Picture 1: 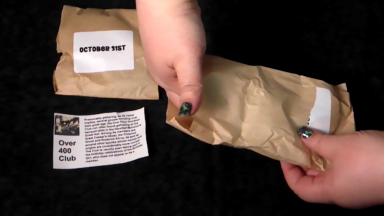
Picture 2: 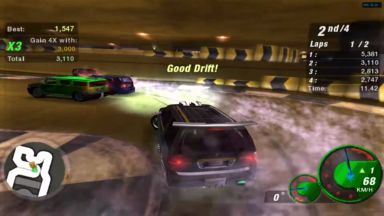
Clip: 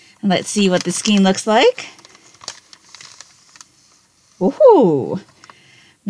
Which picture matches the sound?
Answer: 1